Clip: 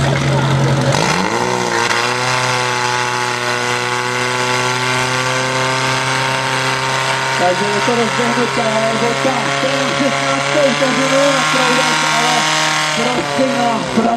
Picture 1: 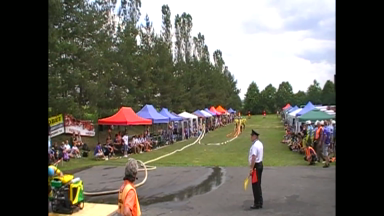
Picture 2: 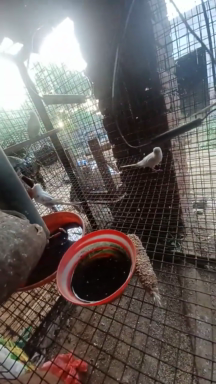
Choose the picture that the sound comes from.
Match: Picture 1